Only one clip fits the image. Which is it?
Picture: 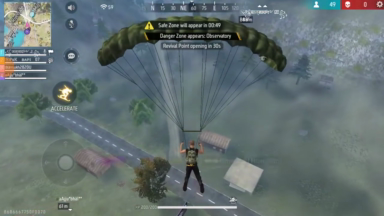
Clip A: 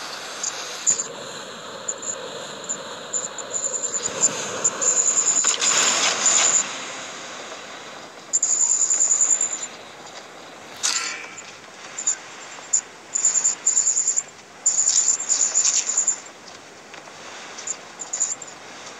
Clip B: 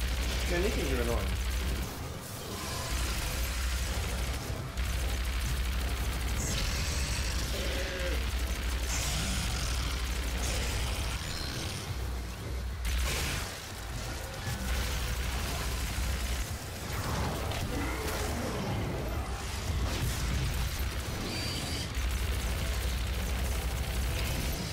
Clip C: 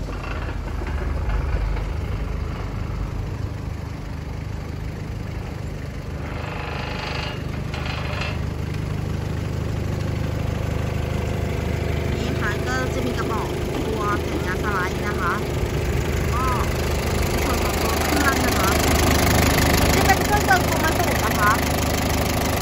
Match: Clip A